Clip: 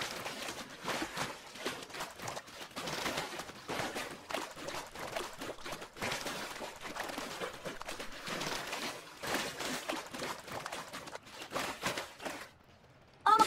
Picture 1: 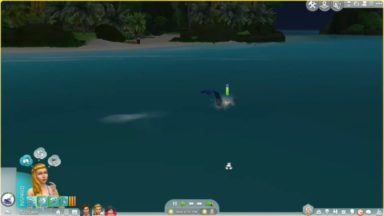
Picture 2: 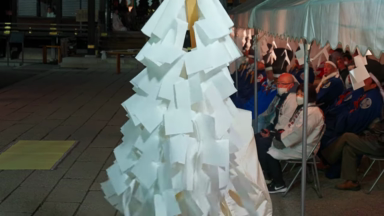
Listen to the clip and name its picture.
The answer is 1